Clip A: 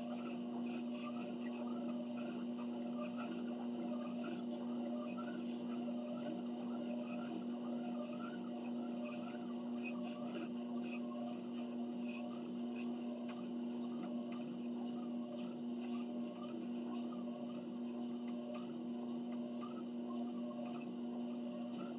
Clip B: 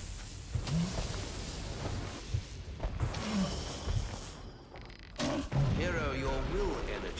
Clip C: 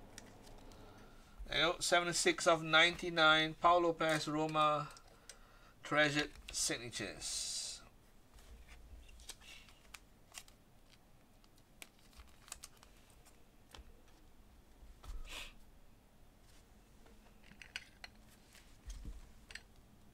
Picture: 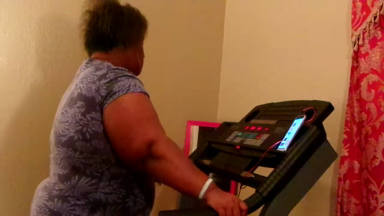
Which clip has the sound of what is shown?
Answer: A